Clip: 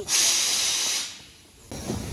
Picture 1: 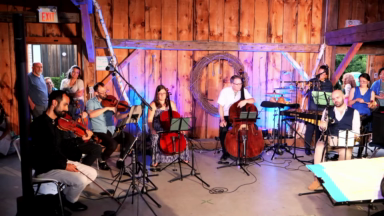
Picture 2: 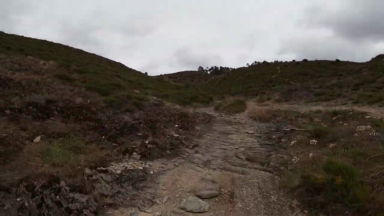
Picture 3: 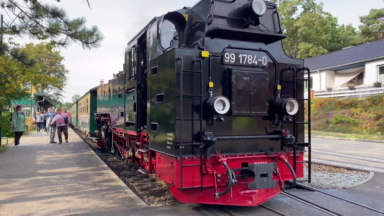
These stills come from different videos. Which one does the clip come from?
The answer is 3